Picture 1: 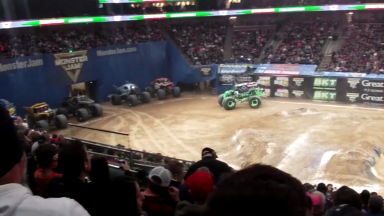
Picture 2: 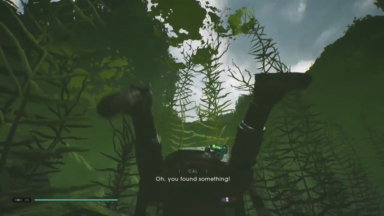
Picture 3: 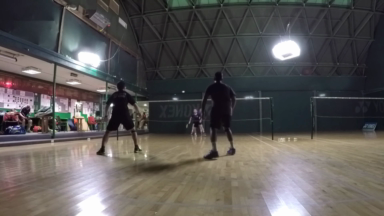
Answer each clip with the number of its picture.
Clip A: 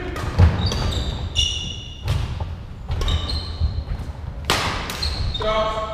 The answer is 3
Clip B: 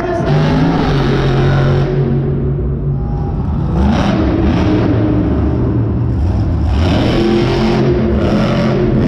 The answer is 1